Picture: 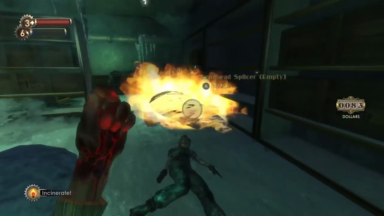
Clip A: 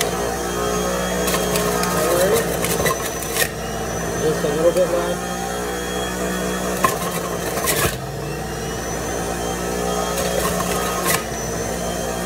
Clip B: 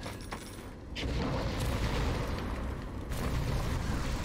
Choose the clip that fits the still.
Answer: B